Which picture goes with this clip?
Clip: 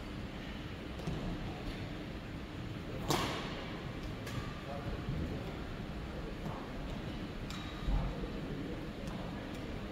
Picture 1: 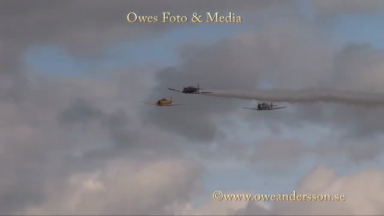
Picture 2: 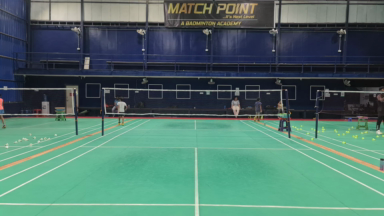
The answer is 2